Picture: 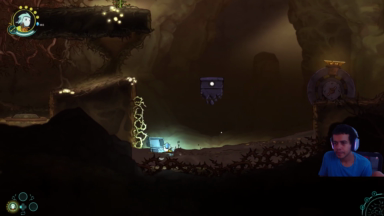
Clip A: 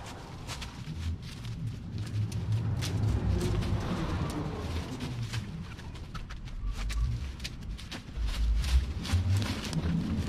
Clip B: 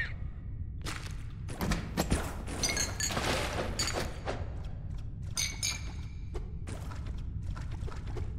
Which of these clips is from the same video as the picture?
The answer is B